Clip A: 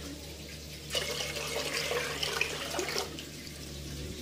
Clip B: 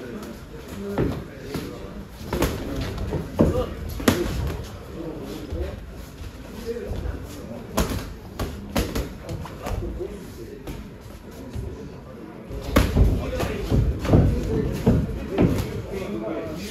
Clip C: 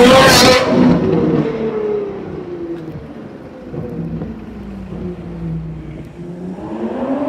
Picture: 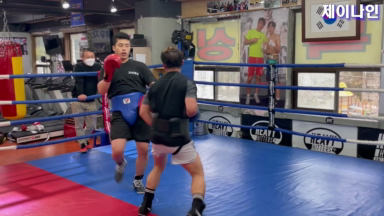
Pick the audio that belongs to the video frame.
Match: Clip B